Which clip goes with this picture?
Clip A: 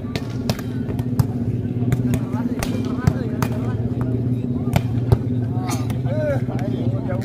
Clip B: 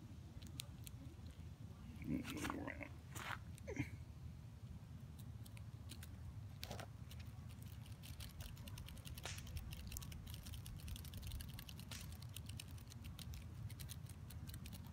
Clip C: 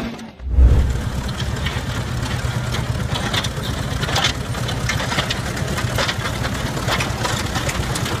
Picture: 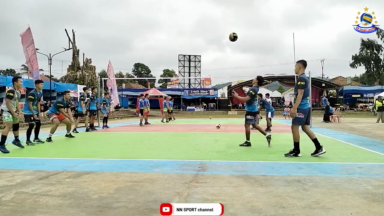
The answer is A